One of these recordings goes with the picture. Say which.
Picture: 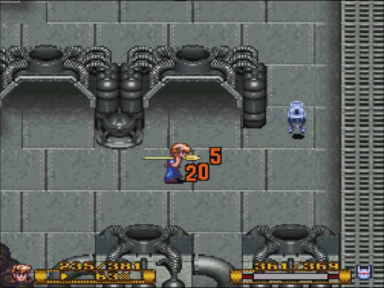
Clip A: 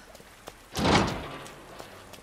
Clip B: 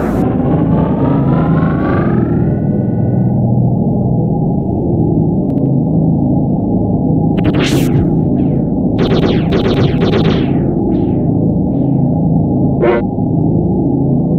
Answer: B